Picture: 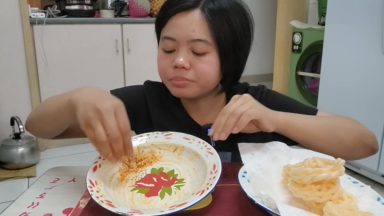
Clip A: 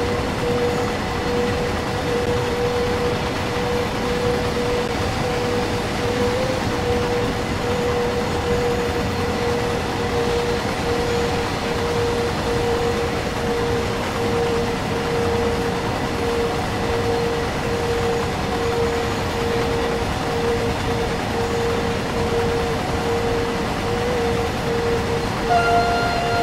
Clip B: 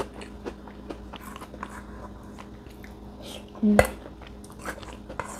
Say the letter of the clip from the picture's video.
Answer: B